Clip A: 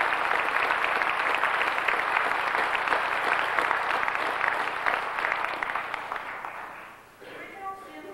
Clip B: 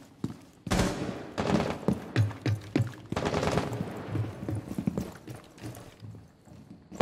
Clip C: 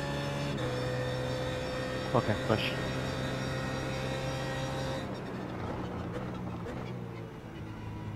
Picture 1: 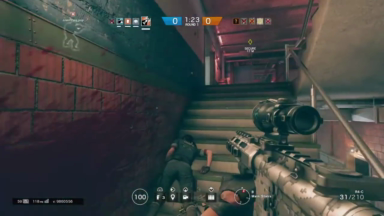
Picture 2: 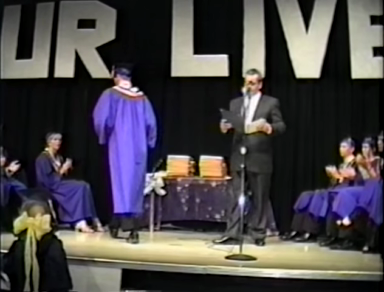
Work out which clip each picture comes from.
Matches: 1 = B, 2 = A